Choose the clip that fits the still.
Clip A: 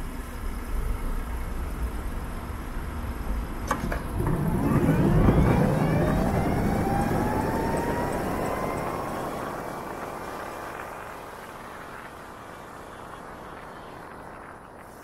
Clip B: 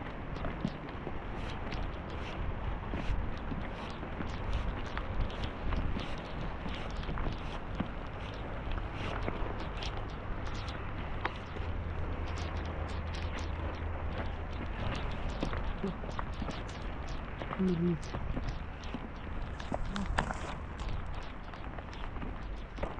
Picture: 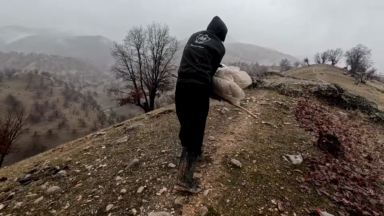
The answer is B